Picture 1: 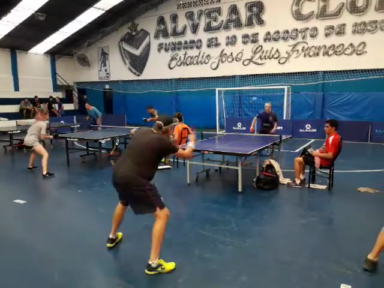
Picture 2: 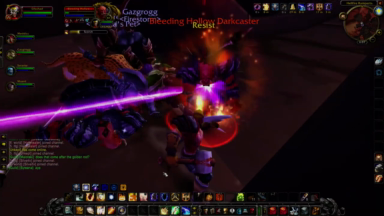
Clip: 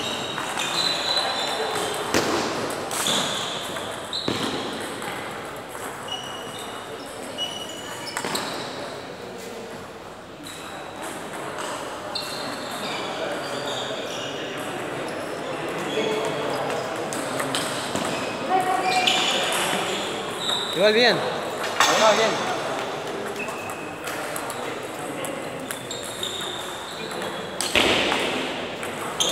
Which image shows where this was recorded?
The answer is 1